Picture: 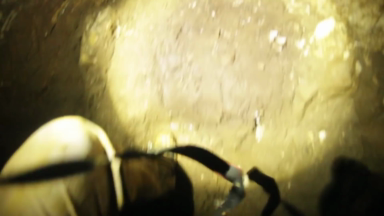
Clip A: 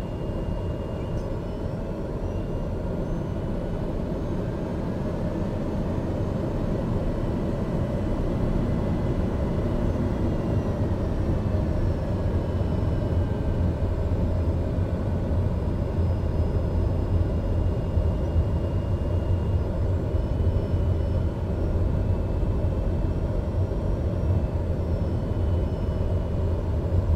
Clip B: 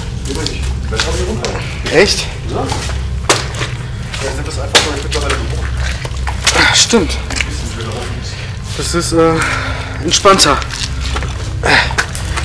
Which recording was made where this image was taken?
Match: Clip B